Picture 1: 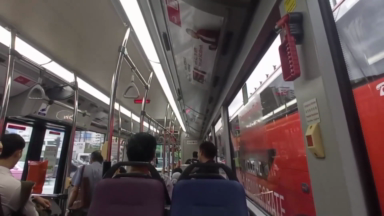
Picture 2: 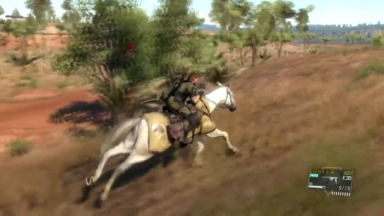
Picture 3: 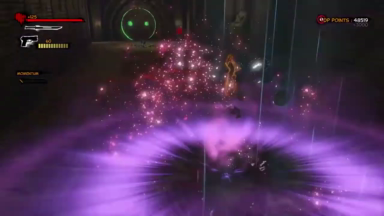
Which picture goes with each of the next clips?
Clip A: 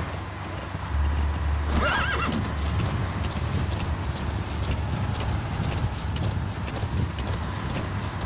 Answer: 2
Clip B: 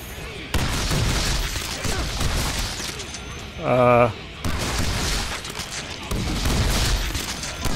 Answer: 3